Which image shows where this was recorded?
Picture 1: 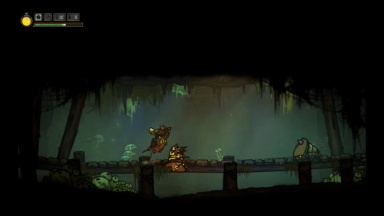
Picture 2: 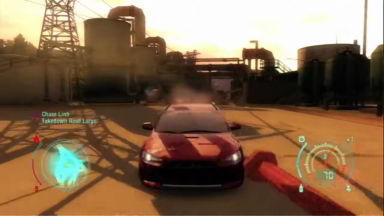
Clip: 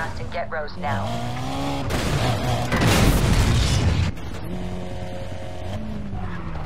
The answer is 2